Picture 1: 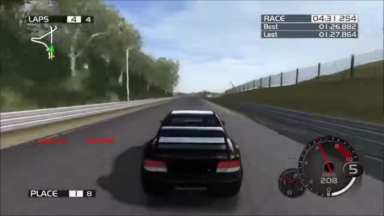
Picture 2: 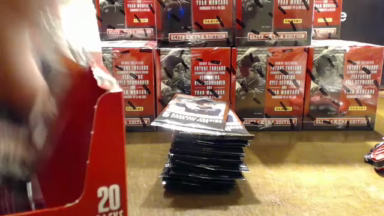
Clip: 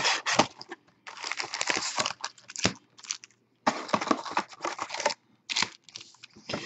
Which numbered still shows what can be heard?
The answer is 2